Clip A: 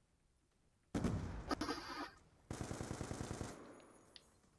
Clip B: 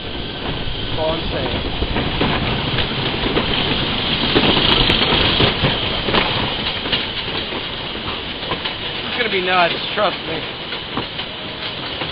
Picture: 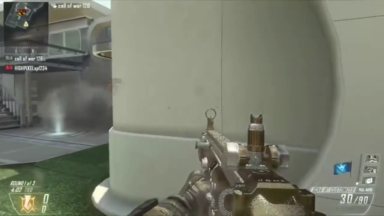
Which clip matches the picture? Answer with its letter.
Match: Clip A